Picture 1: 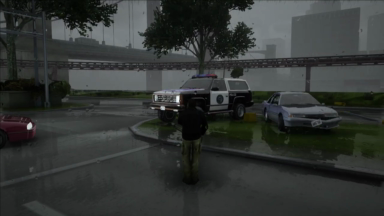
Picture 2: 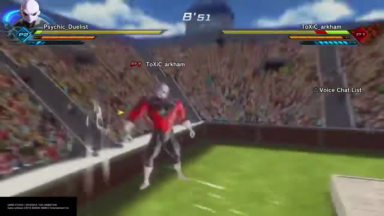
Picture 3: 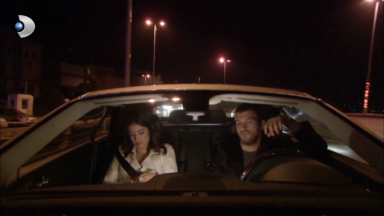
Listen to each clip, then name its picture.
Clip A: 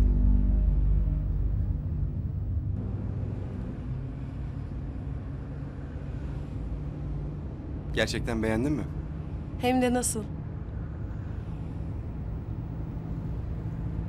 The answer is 3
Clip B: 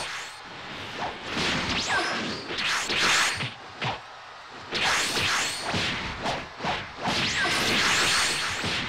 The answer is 2